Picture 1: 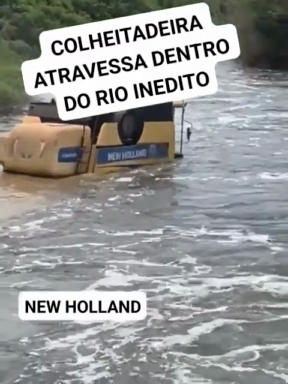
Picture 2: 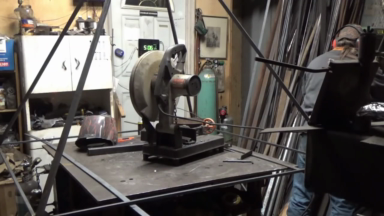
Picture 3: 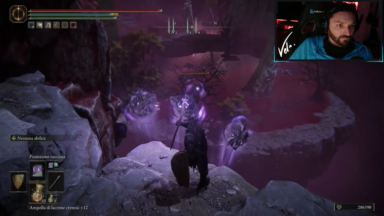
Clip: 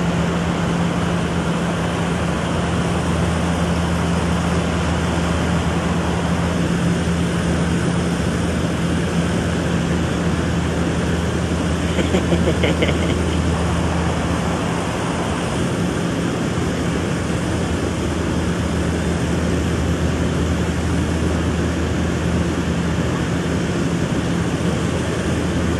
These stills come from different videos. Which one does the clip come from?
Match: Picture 1